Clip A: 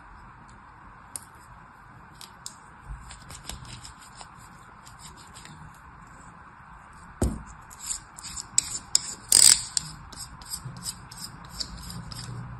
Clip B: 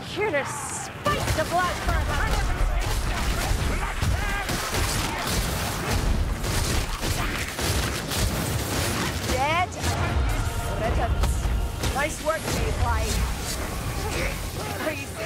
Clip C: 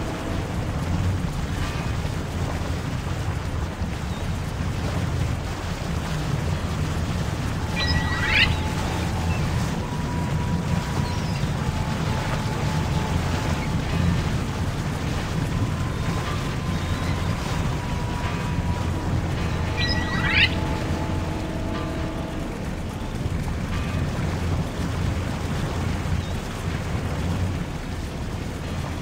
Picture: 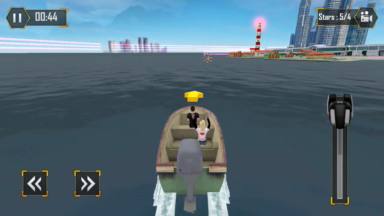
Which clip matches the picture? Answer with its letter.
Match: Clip C